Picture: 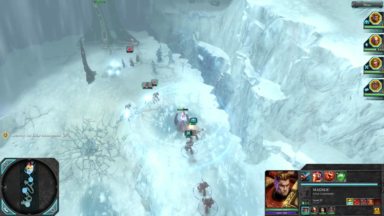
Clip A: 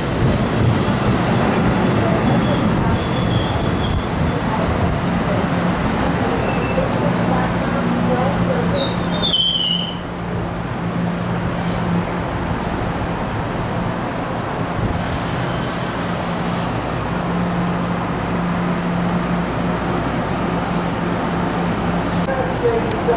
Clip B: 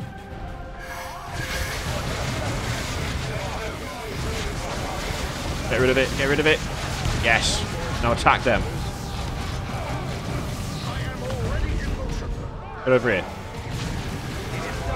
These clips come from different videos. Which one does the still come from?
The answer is B